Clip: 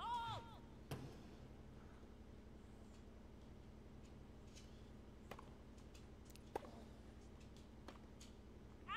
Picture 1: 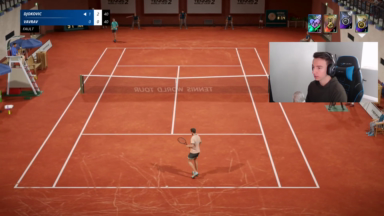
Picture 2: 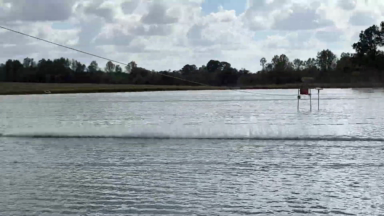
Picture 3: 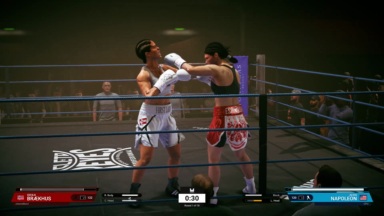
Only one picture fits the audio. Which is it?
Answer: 1